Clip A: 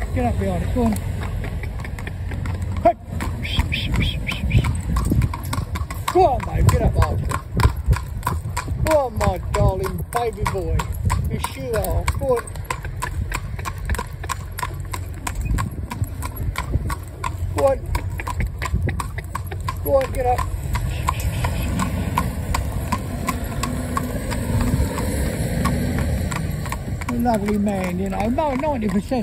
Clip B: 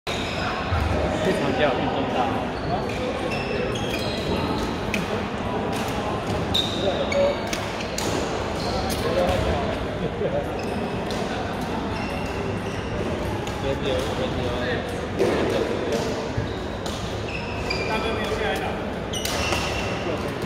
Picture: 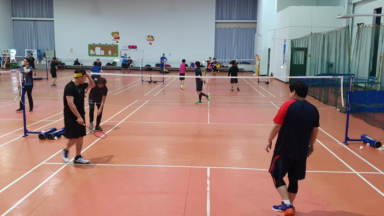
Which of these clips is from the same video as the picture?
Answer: B